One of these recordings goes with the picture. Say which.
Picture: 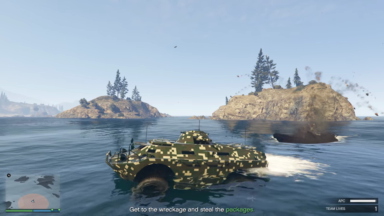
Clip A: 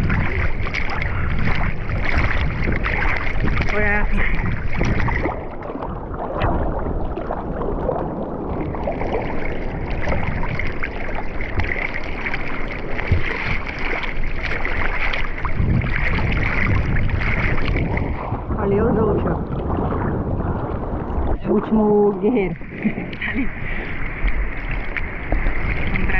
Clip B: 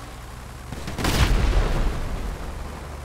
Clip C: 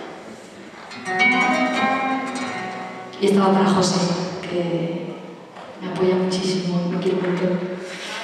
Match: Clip B